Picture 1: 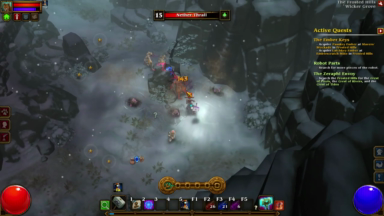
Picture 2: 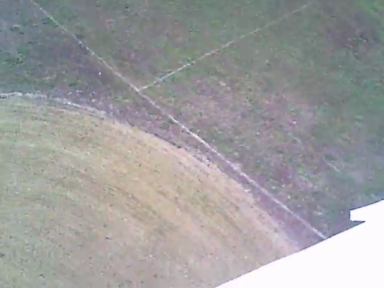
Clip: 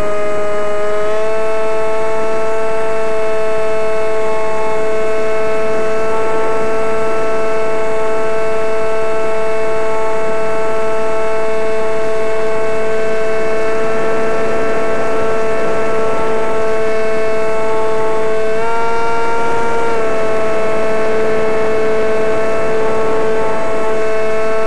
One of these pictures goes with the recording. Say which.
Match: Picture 2